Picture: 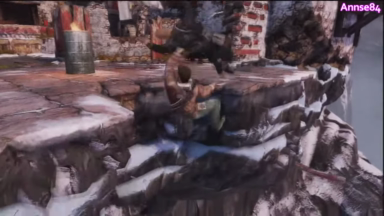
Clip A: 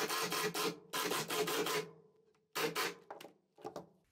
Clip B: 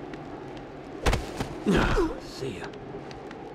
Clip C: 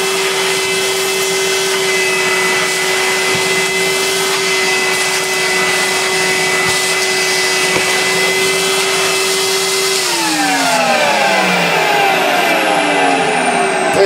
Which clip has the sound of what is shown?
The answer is B